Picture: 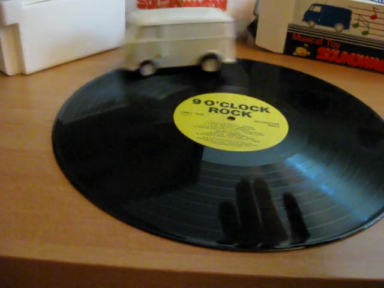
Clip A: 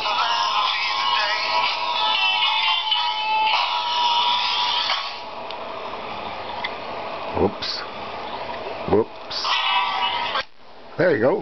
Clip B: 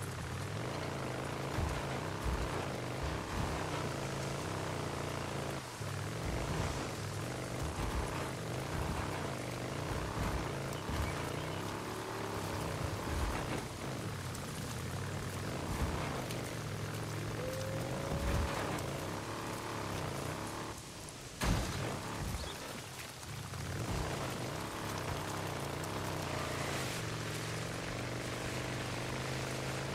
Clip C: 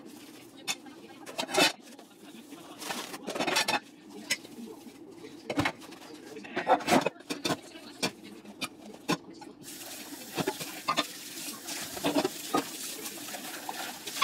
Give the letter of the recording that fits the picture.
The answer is A